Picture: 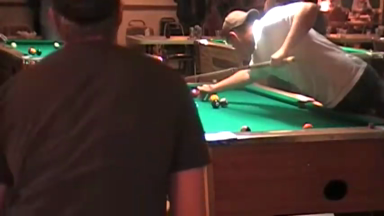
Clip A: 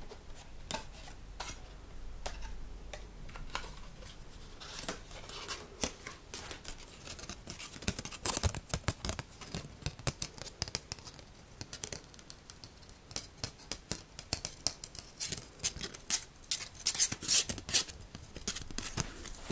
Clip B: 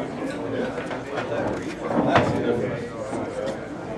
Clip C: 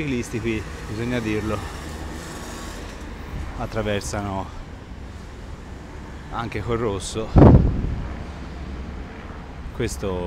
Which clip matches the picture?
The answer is B